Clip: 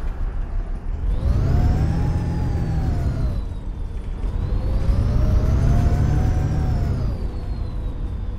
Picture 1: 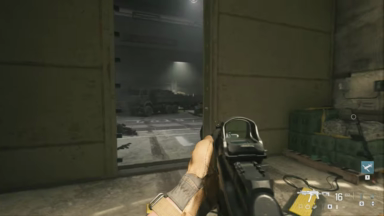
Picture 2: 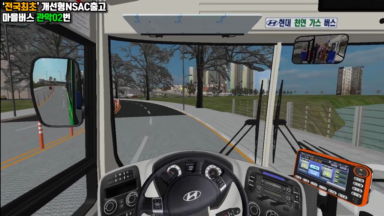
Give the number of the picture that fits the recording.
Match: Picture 2